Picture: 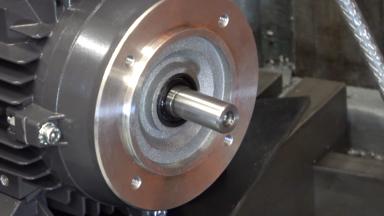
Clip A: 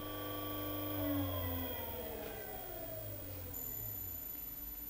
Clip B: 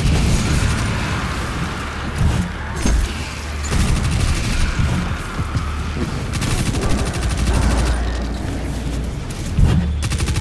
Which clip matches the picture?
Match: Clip A